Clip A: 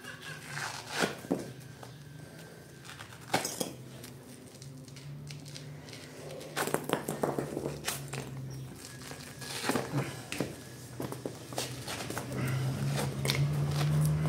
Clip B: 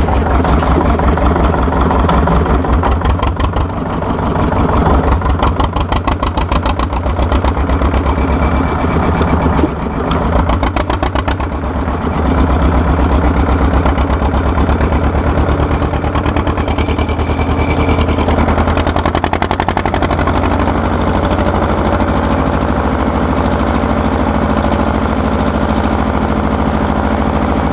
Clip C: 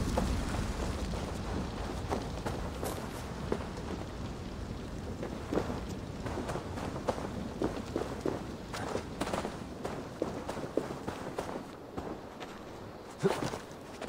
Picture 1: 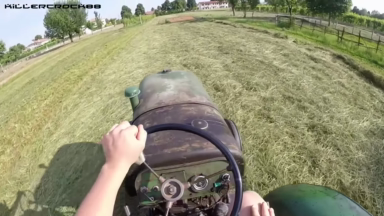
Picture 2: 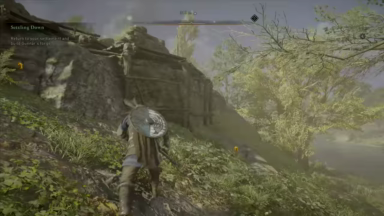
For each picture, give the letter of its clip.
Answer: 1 B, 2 C